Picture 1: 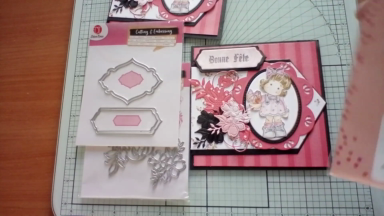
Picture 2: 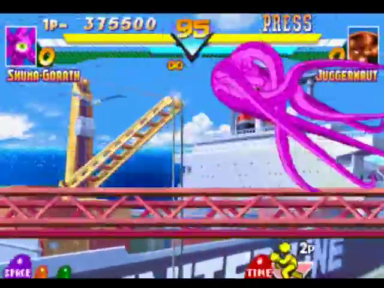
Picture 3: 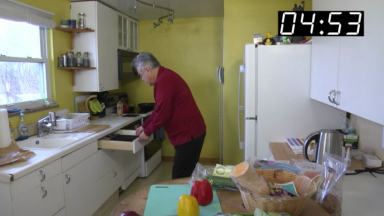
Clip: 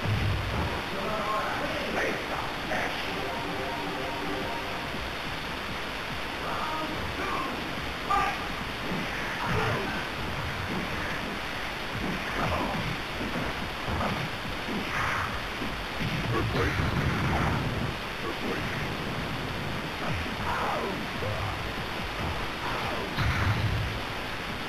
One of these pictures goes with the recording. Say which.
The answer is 2